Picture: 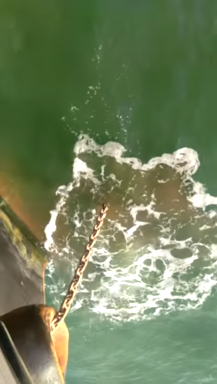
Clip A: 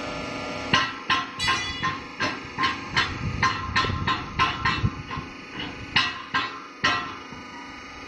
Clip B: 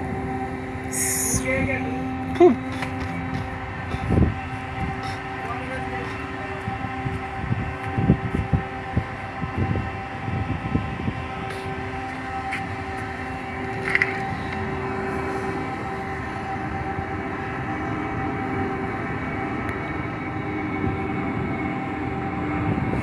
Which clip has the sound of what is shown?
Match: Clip B